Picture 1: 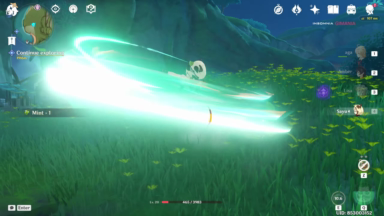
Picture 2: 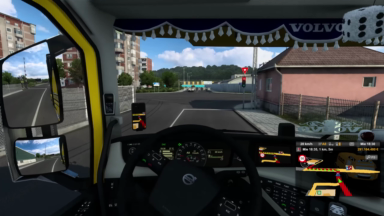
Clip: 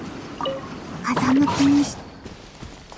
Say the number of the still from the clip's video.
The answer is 1